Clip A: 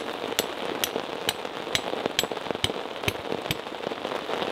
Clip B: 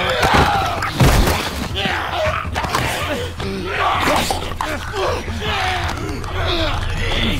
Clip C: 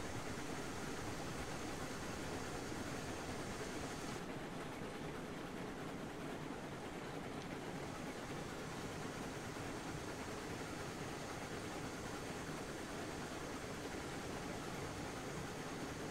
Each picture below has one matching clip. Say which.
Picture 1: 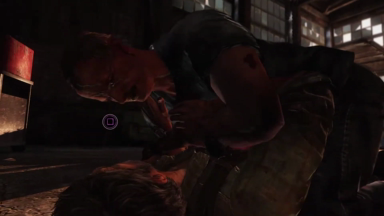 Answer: B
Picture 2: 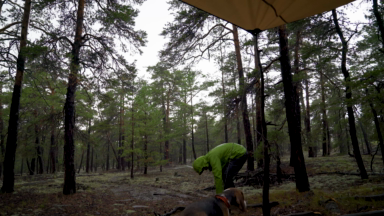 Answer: A